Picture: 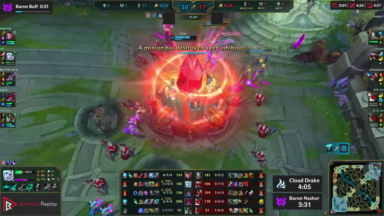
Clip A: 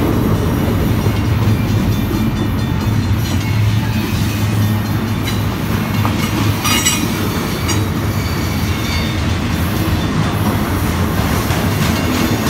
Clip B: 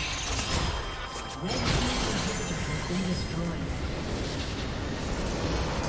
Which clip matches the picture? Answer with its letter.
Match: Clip B